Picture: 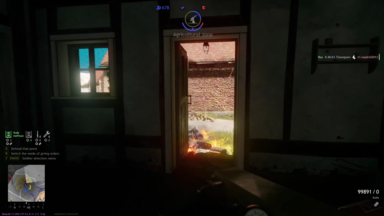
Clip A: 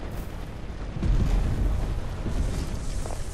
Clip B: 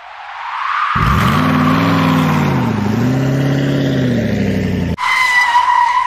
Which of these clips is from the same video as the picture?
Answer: A